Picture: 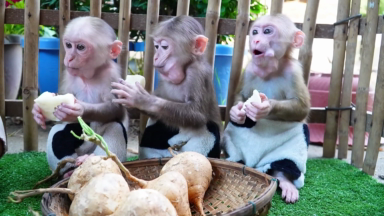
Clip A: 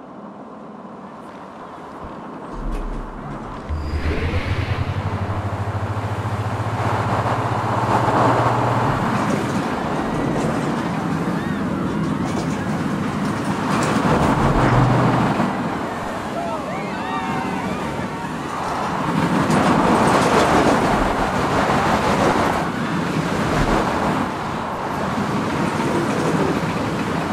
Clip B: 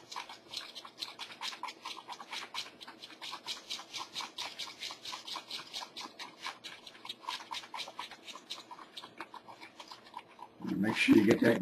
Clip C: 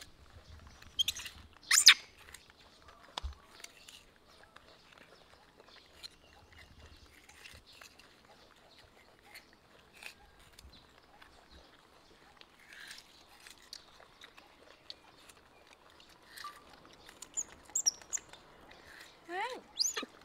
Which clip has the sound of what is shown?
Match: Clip C